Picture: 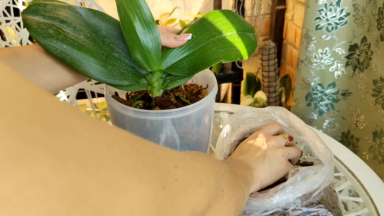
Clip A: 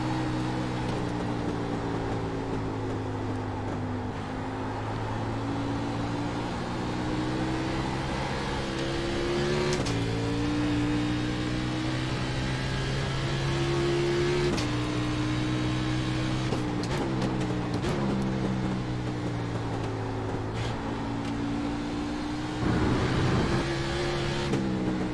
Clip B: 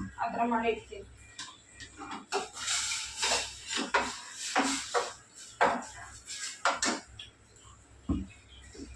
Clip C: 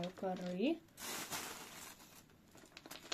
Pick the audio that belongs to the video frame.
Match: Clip C